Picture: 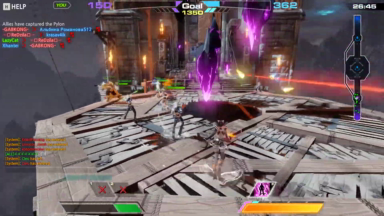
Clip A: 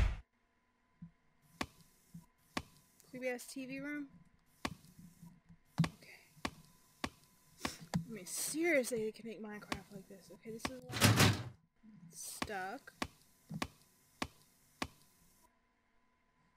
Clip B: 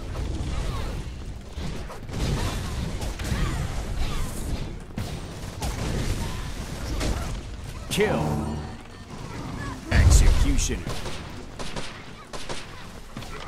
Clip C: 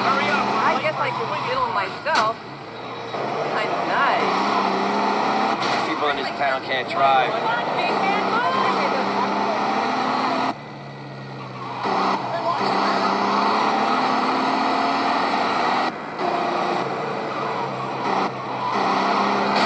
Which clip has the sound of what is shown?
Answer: B